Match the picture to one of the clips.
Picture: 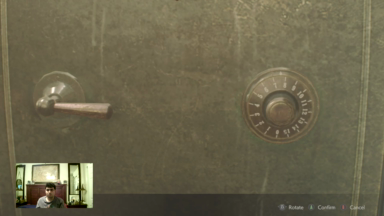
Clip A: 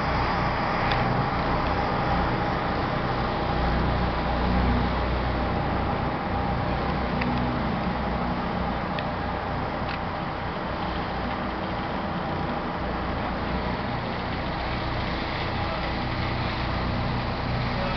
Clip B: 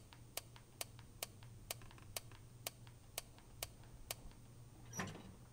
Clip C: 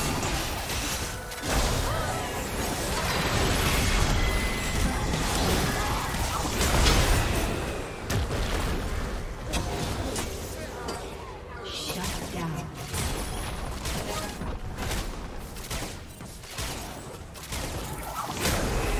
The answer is B